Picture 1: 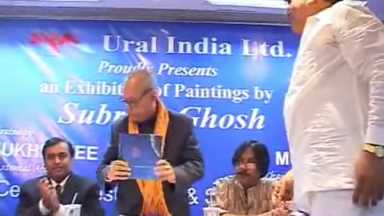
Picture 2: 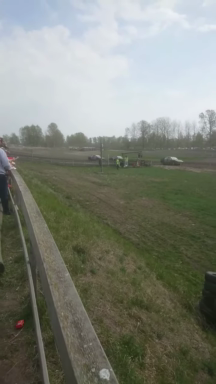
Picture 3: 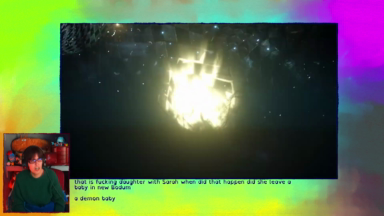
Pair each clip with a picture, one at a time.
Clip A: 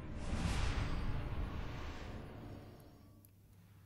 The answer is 3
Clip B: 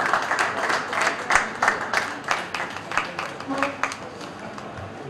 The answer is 1